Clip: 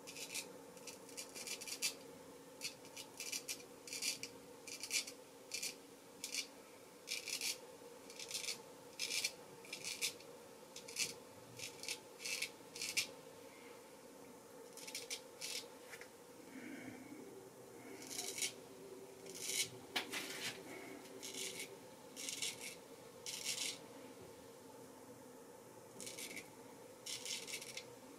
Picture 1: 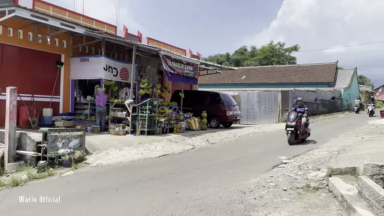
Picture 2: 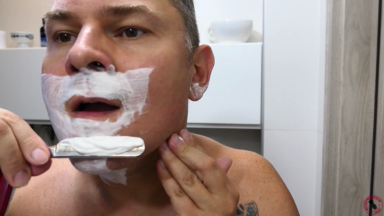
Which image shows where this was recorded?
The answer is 2